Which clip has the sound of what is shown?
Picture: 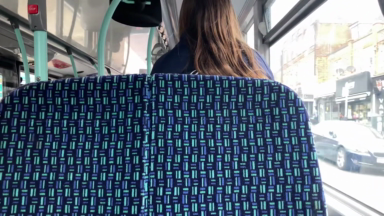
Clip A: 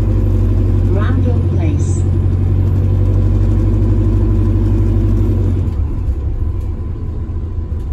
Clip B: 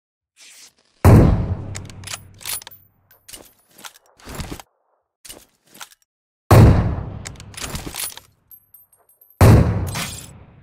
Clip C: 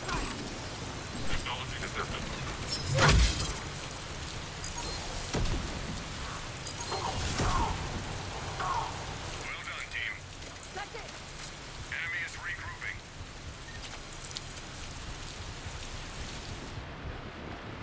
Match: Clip A